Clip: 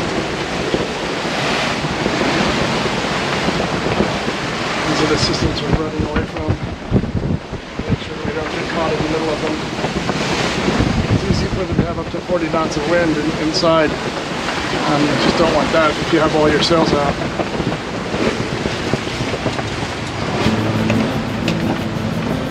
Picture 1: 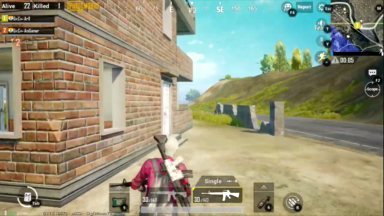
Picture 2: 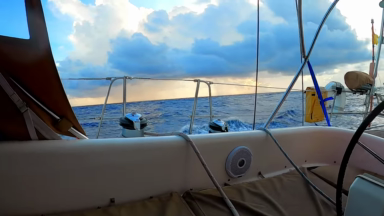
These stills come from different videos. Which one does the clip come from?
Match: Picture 2